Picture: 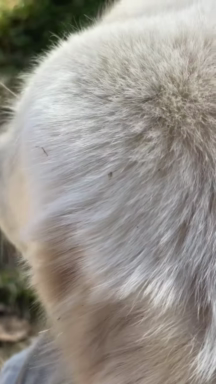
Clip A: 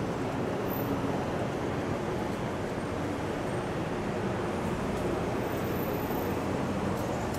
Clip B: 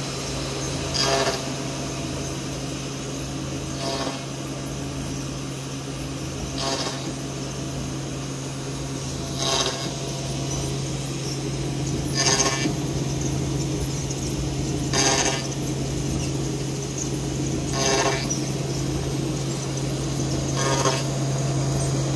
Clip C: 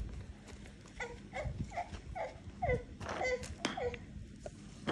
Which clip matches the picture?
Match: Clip C